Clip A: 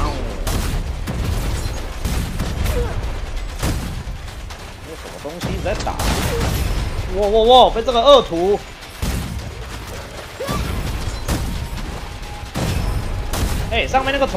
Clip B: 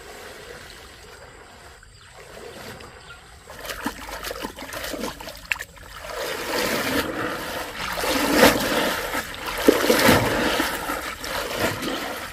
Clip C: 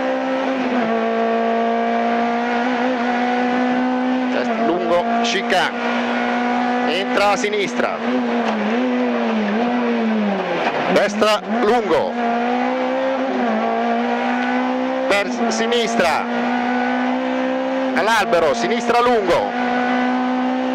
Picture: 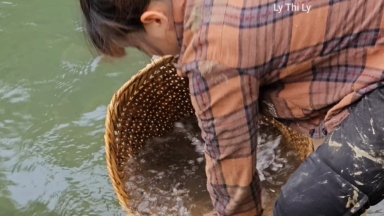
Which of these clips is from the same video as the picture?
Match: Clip B